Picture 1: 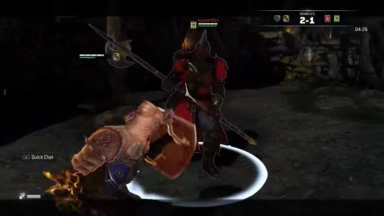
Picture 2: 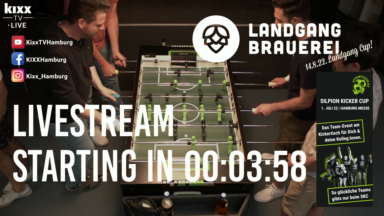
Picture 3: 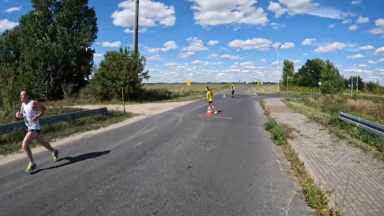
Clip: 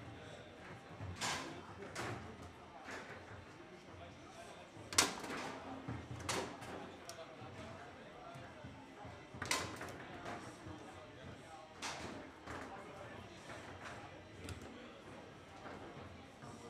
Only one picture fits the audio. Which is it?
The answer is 2